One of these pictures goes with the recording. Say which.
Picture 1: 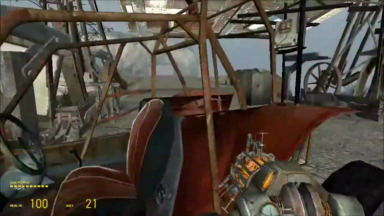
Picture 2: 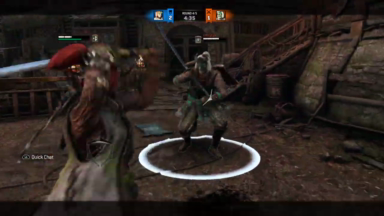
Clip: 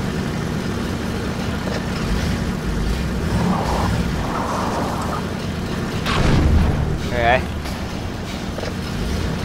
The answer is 1